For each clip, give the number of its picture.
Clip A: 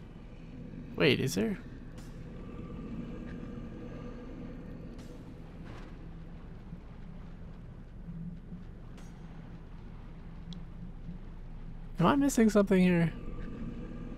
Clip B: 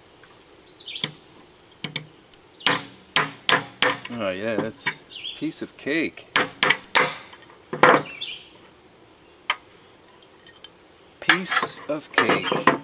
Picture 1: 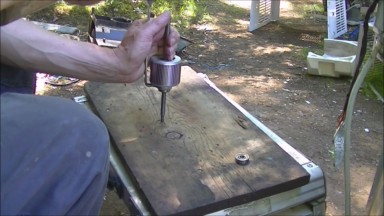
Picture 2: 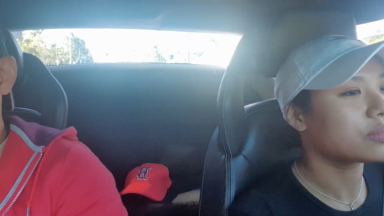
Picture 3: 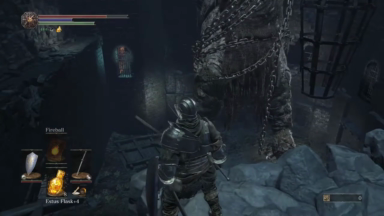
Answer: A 3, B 1